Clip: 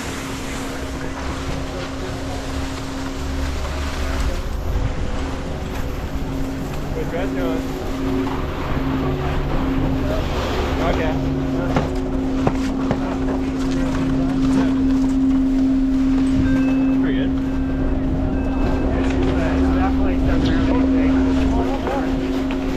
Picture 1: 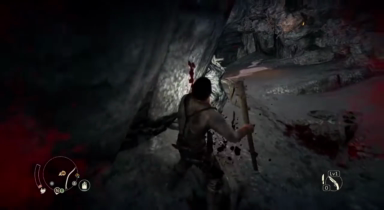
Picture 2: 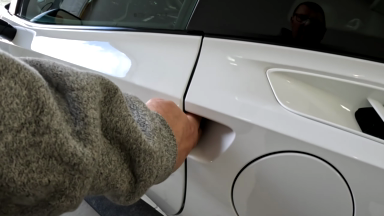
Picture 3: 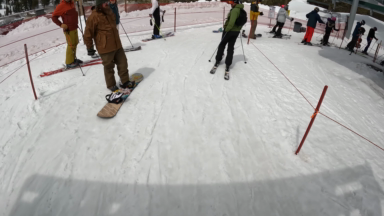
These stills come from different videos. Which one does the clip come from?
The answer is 3